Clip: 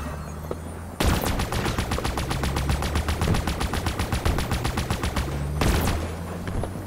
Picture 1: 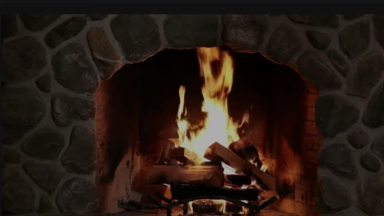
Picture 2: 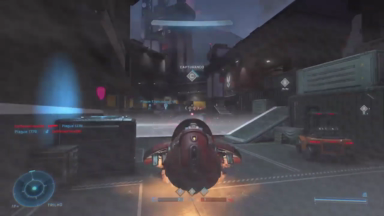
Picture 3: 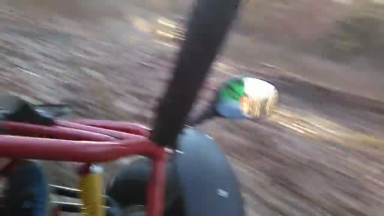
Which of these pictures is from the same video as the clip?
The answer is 2